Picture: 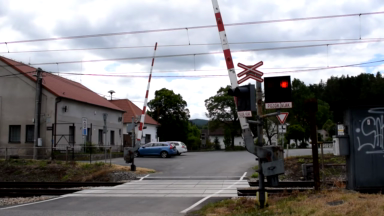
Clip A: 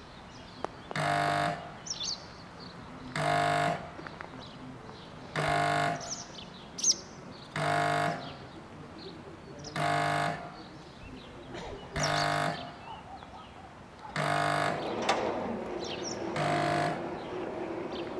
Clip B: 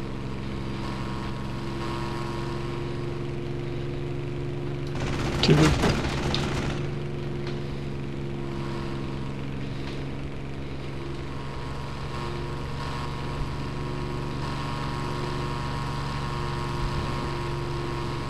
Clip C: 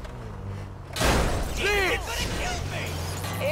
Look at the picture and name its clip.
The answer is A